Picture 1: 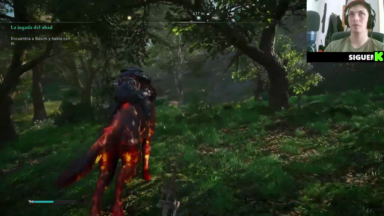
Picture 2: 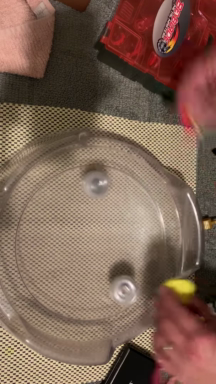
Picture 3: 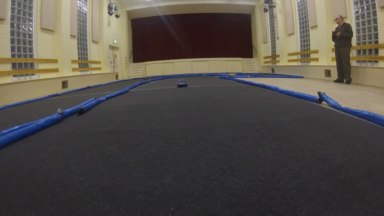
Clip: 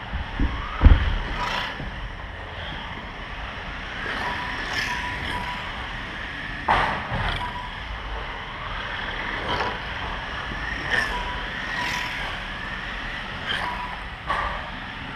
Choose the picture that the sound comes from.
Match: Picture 3